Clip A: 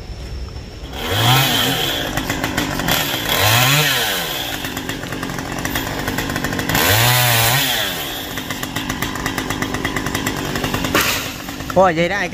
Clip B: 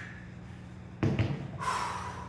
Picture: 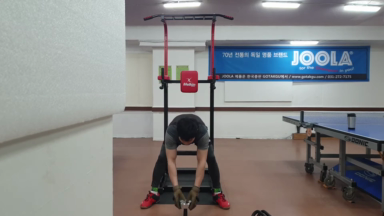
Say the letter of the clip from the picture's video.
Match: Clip B